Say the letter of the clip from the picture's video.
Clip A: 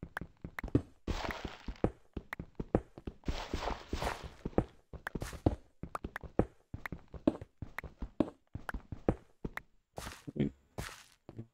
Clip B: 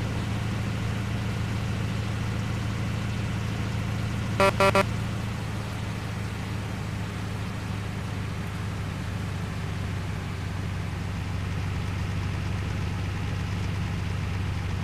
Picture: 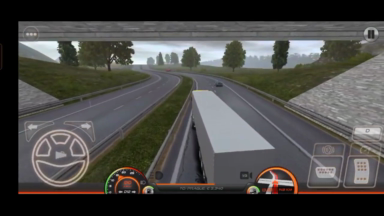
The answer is B